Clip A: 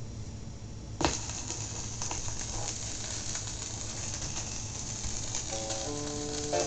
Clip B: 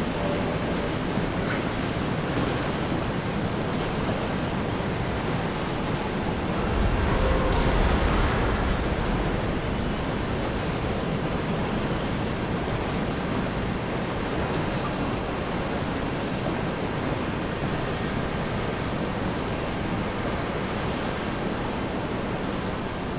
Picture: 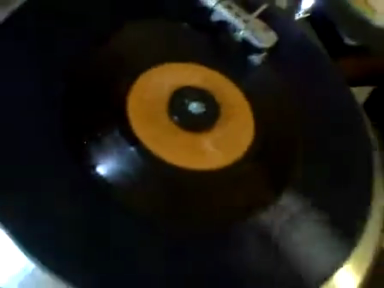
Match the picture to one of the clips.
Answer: A